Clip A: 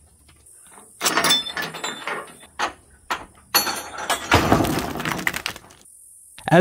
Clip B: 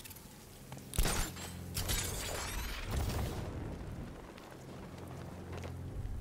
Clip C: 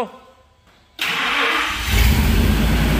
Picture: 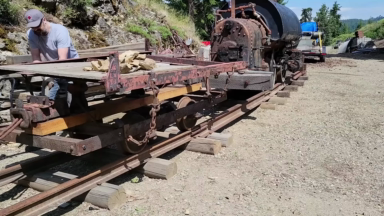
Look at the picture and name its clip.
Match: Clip A